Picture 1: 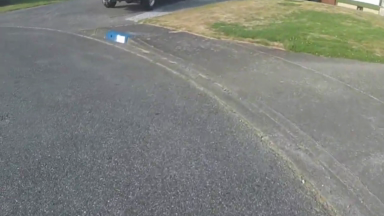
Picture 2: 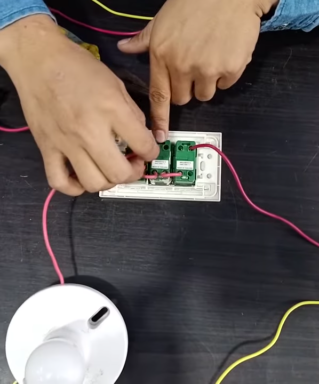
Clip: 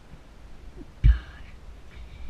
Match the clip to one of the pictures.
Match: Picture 1